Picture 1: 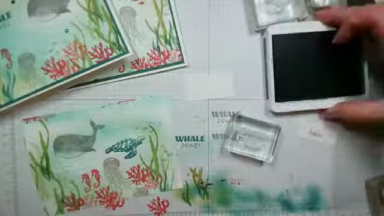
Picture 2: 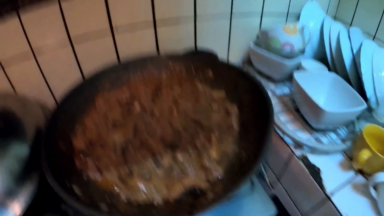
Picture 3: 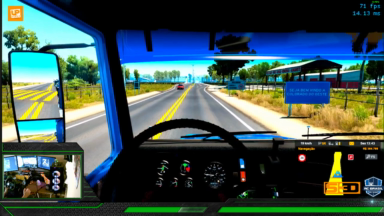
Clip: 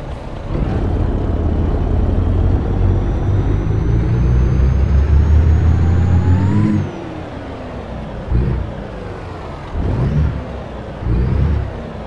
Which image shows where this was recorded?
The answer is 3